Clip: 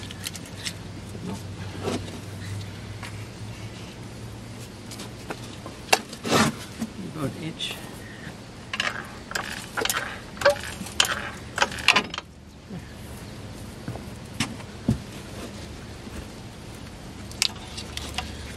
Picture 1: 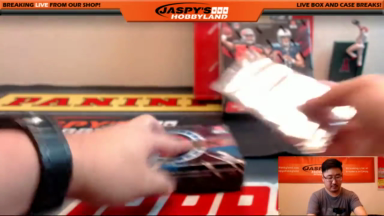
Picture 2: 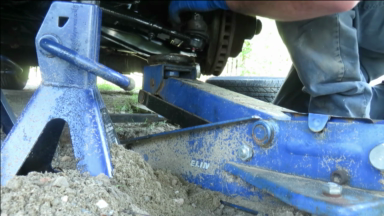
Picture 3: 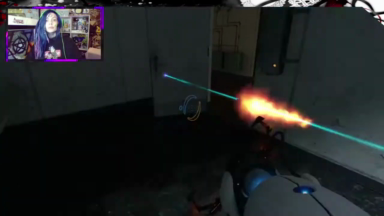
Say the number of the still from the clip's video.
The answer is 2